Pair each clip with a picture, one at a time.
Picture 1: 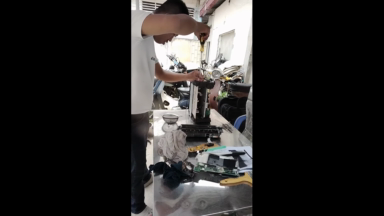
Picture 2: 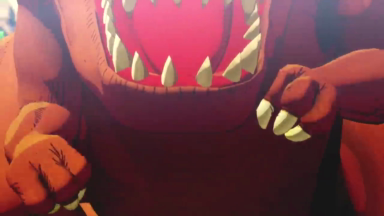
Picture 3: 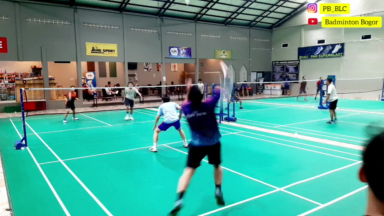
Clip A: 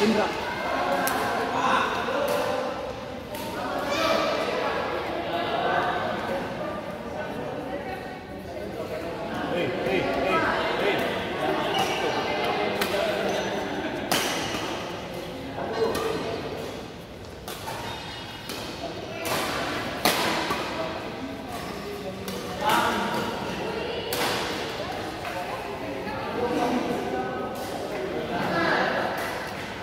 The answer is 3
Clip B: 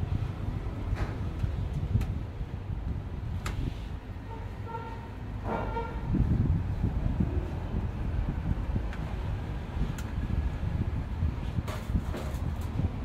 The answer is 1